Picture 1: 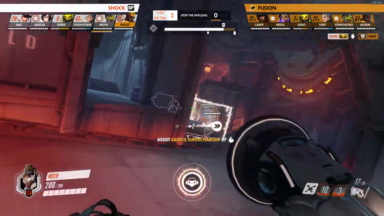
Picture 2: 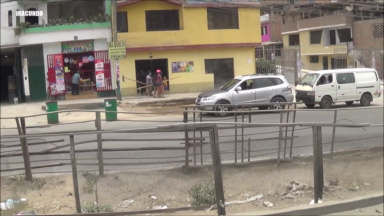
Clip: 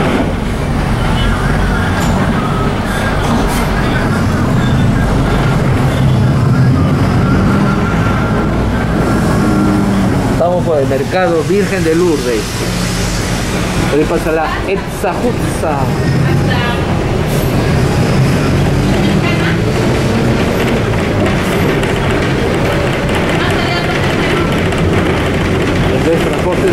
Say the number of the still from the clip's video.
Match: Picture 2